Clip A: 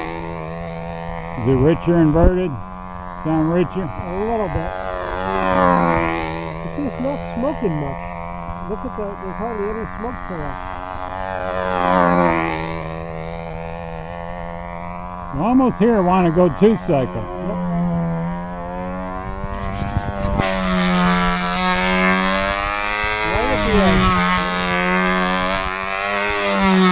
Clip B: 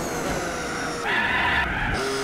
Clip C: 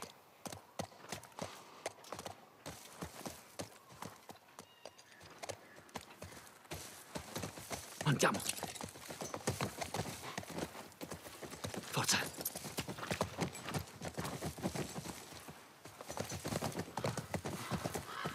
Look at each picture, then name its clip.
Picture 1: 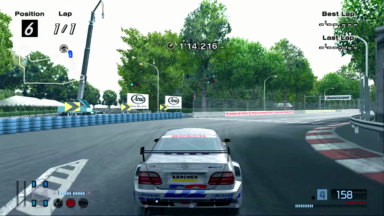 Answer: B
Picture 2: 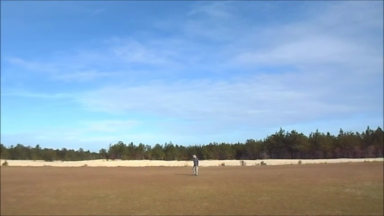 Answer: A